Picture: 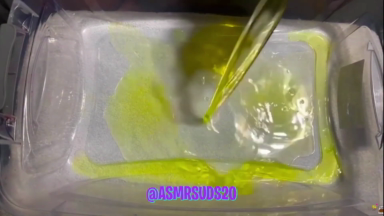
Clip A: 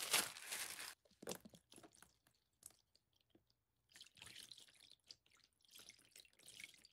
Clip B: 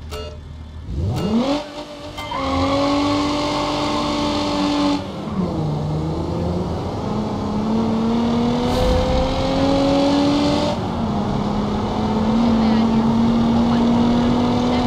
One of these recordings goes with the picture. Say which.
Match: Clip A